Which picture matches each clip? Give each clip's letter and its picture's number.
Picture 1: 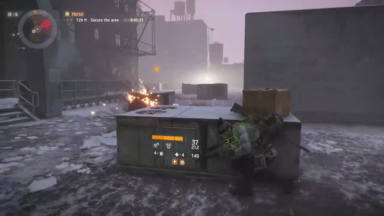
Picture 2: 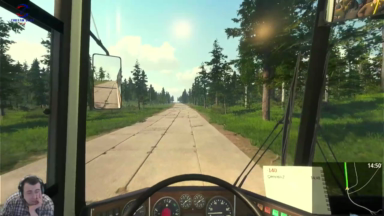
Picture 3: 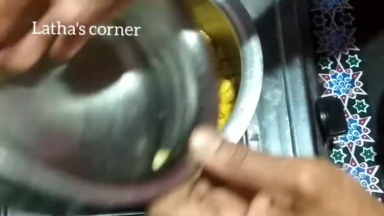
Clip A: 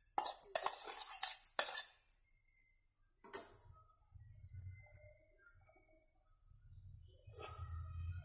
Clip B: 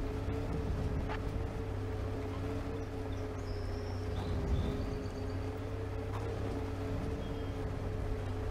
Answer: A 3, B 2